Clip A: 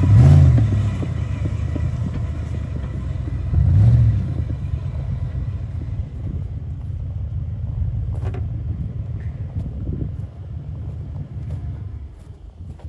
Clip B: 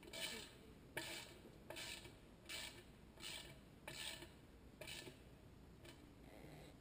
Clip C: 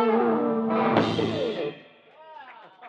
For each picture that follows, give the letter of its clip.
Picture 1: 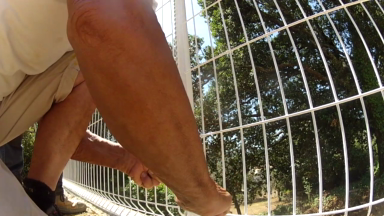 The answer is B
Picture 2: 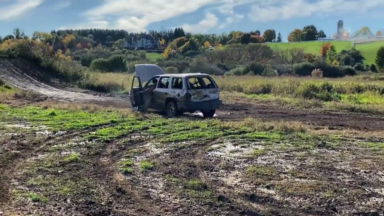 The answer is A